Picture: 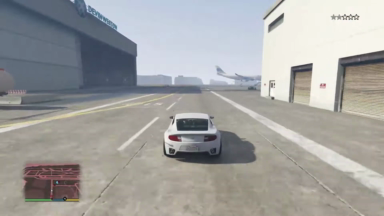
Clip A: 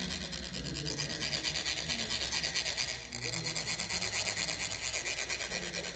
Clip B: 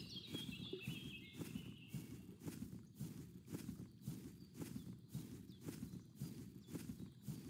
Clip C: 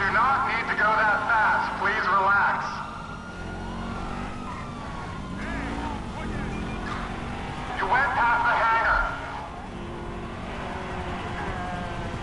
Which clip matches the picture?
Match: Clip C